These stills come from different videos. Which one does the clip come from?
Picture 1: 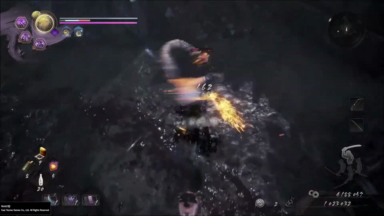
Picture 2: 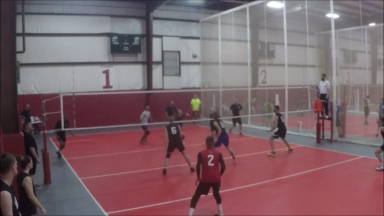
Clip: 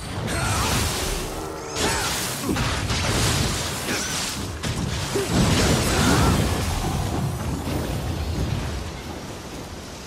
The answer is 1